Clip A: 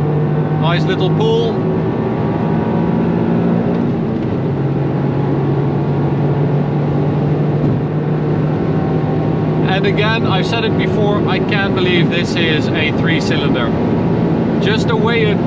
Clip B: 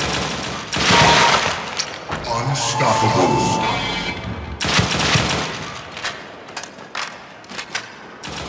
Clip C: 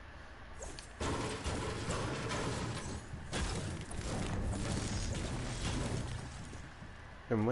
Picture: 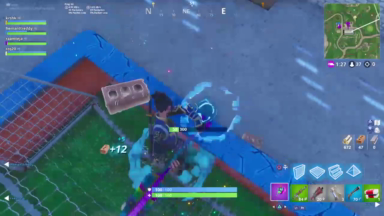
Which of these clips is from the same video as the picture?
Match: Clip C